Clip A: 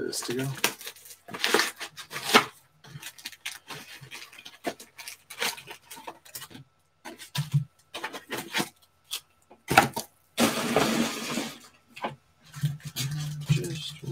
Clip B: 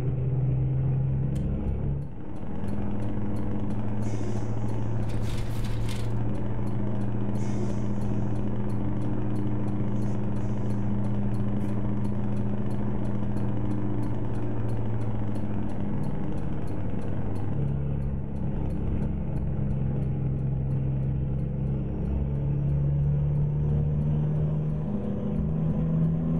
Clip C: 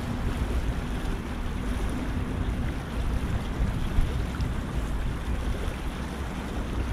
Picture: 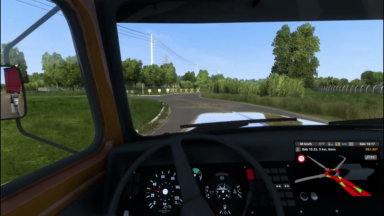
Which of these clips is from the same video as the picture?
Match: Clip B